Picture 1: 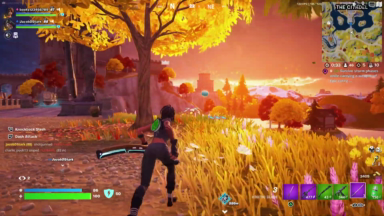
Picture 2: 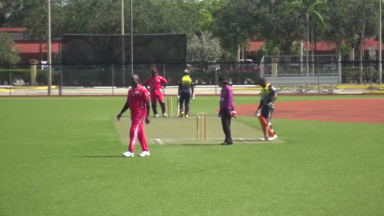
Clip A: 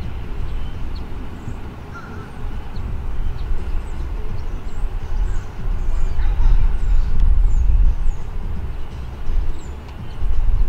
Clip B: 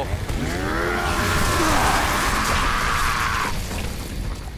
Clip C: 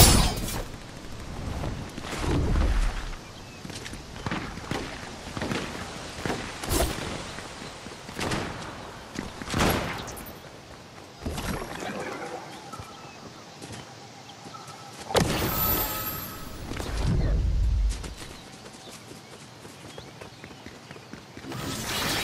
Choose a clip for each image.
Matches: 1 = C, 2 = A